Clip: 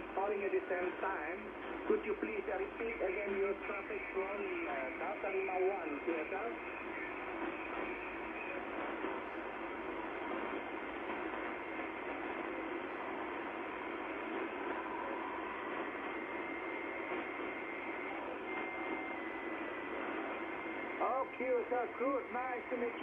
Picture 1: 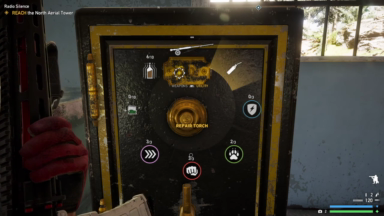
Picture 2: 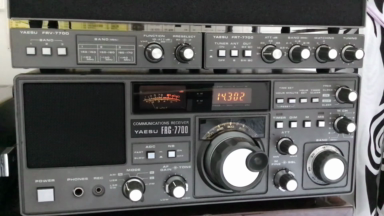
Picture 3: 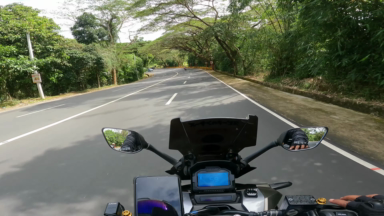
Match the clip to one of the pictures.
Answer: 2